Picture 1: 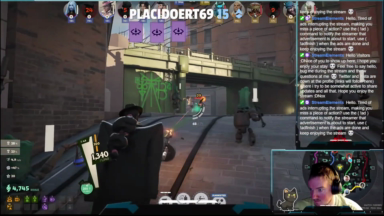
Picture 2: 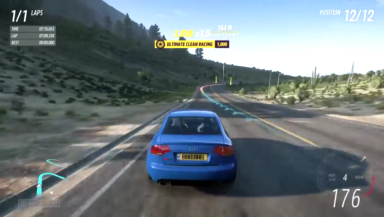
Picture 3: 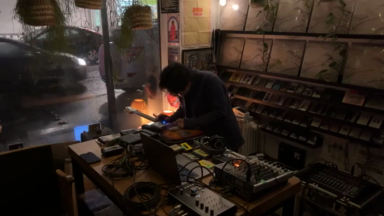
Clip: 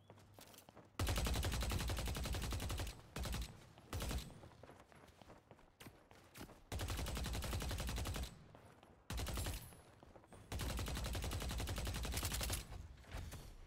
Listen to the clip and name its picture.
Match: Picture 1